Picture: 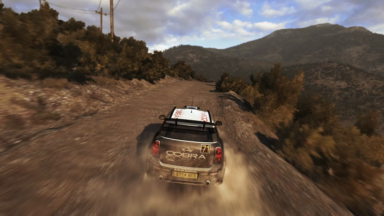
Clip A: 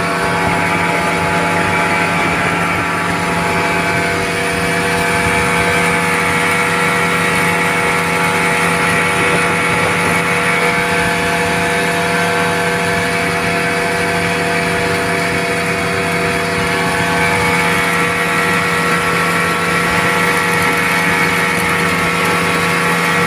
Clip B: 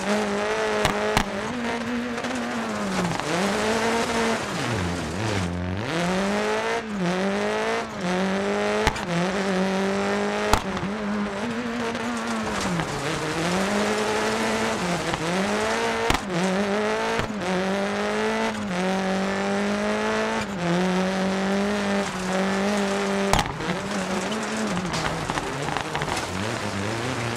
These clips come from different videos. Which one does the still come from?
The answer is B